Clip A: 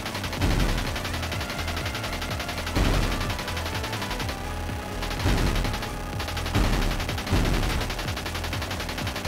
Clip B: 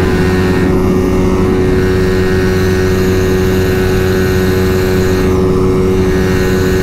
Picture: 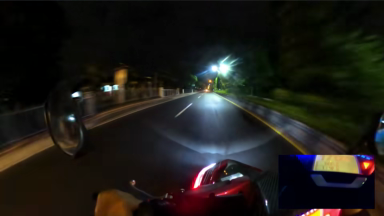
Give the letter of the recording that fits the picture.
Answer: B